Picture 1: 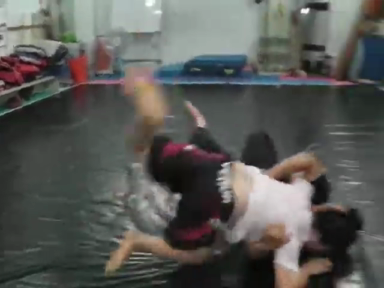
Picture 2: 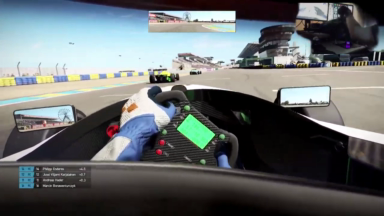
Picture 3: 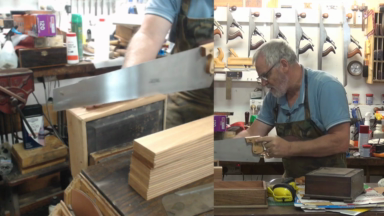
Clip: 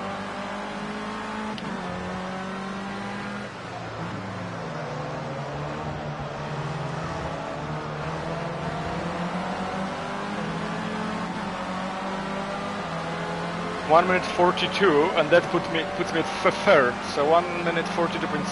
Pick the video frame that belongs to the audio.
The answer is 2